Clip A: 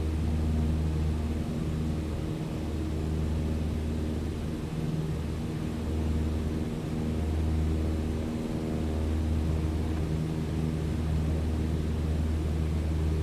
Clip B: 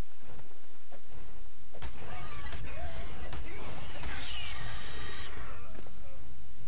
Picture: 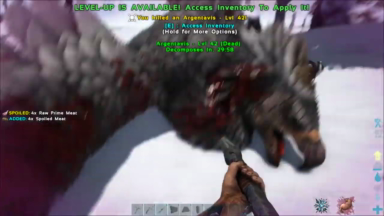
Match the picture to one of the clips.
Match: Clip B